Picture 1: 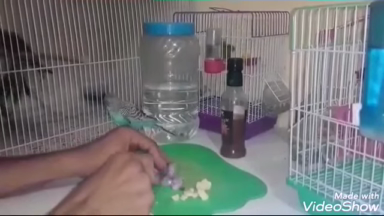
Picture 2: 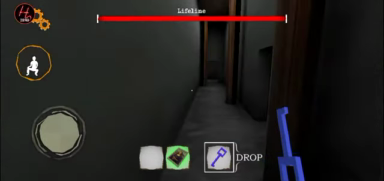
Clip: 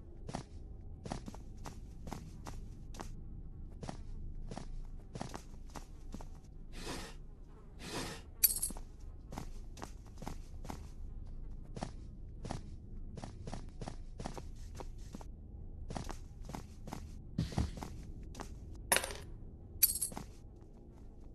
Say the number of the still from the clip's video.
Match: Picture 2